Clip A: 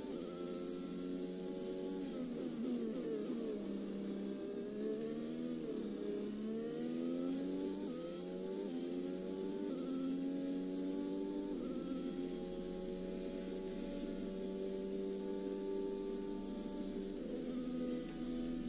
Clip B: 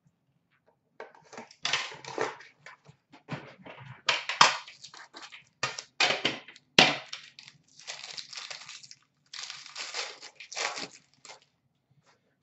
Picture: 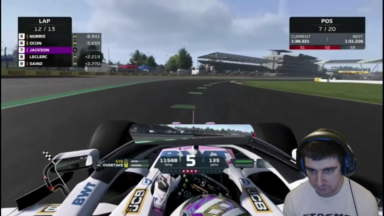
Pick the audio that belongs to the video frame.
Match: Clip A